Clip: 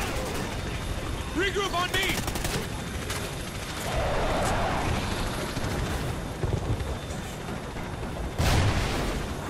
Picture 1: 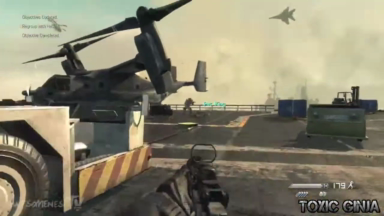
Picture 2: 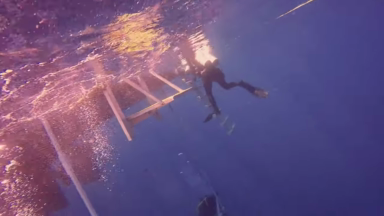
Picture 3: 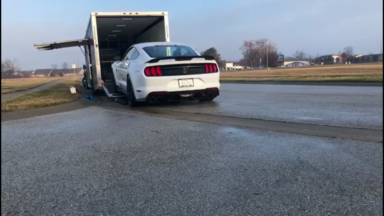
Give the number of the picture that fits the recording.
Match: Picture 1